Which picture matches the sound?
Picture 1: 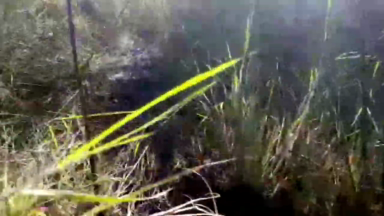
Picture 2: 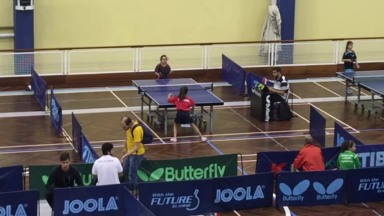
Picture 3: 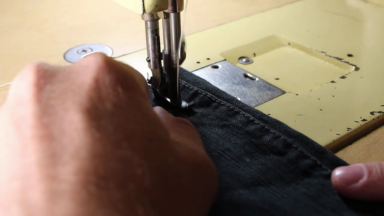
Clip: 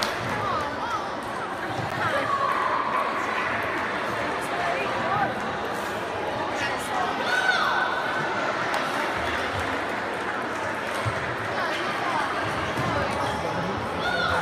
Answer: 2